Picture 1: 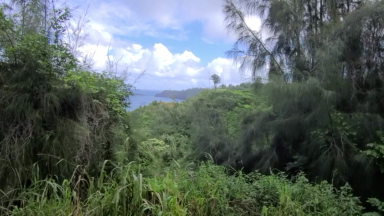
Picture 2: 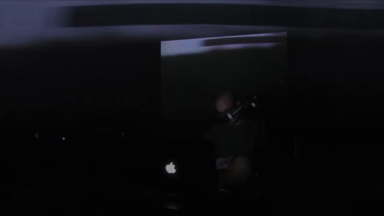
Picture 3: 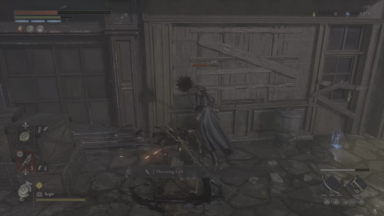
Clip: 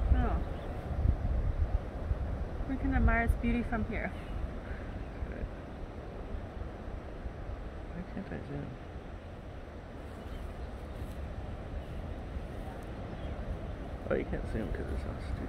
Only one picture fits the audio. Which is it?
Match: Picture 1